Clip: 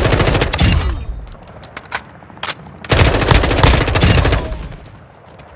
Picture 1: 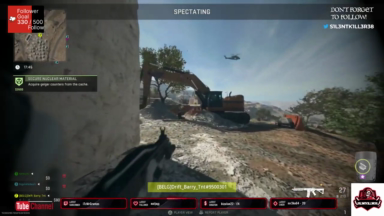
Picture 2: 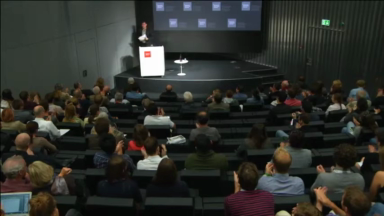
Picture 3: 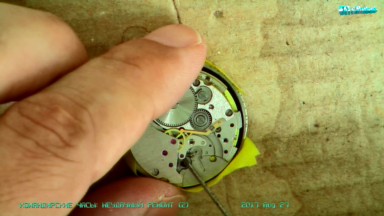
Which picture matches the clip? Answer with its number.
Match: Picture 1